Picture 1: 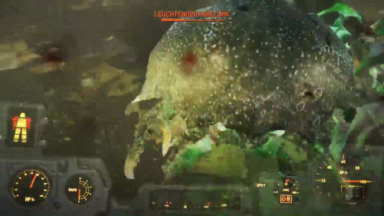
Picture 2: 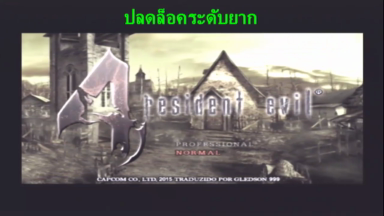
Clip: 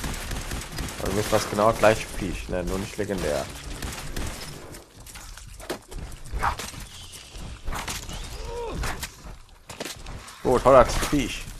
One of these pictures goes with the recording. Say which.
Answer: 1